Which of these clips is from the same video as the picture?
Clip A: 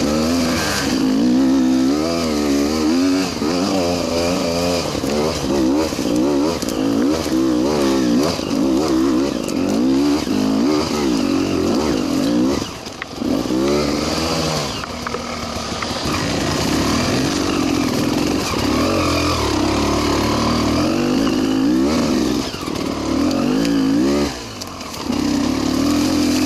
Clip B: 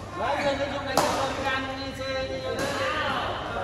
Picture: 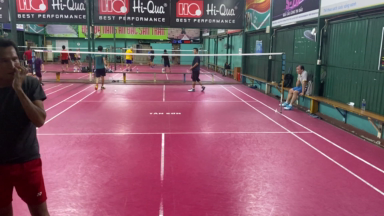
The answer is B